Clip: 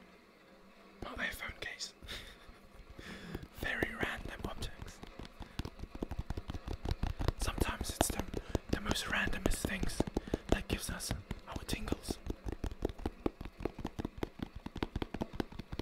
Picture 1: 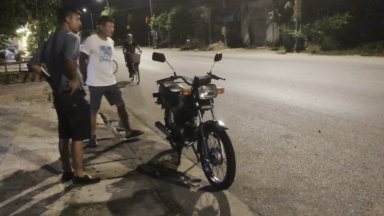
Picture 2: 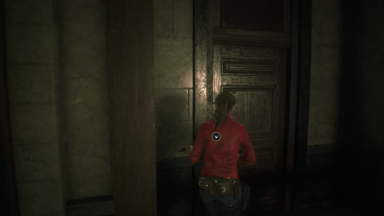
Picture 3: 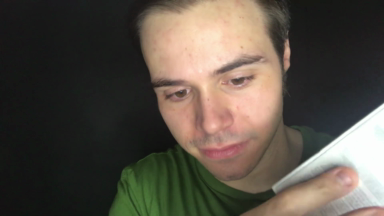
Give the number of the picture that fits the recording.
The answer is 3